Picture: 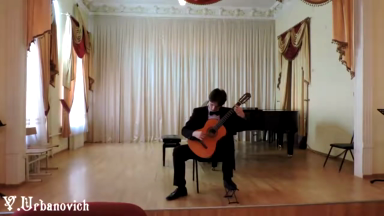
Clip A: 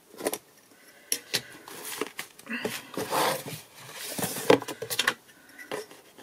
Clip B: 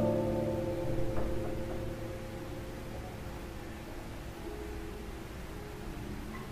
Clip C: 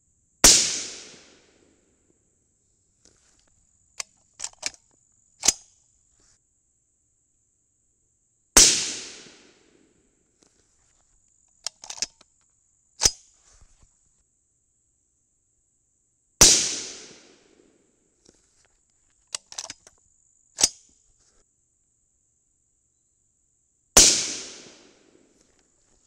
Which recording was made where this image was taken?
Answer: B